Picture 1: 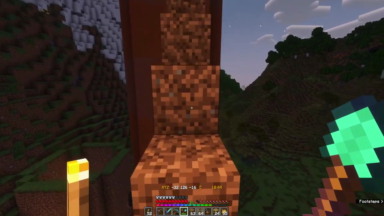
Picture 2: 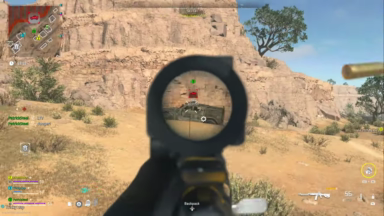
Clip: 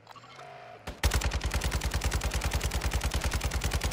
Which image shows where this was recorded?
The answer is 2